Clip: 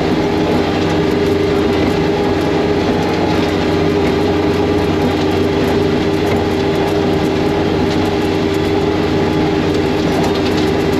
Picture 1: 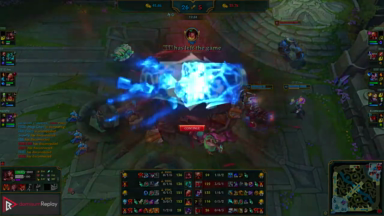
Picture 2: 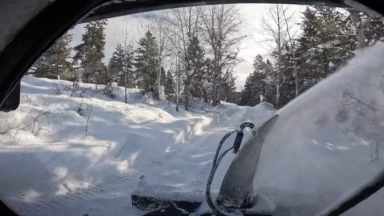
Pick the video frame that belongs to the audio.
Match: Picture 2